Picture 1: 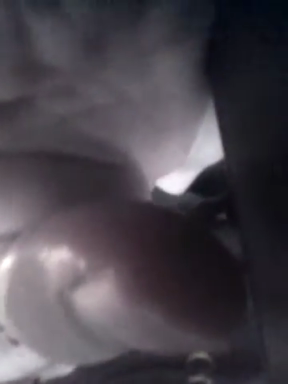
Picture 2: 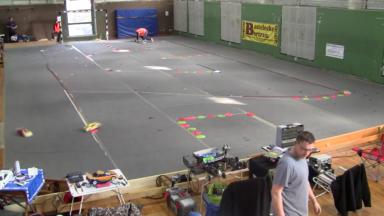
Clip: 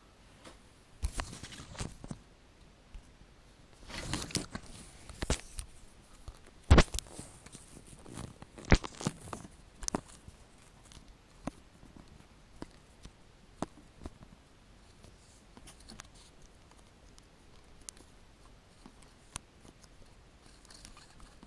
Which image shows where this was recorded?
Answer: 1